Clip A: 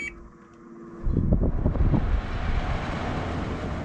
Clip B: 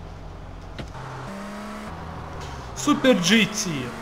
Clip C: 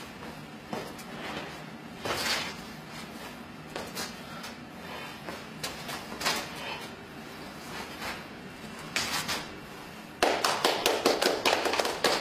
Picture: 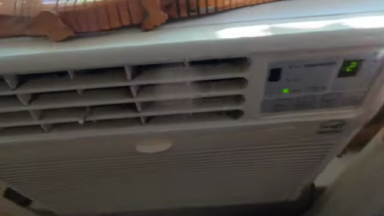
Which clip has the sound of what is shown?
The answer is A